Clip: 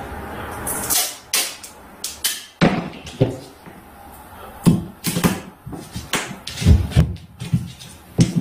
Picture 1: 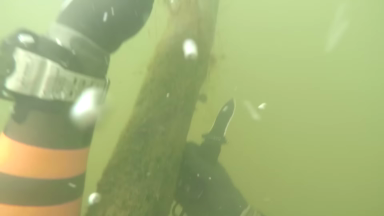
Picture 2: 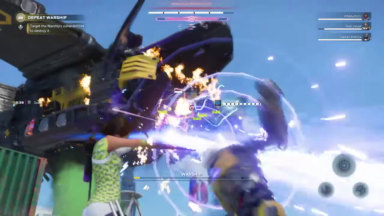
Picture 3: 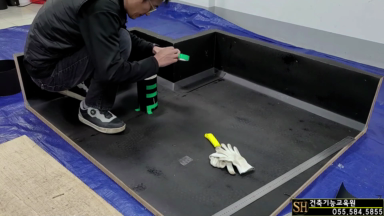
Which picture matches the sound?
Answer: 3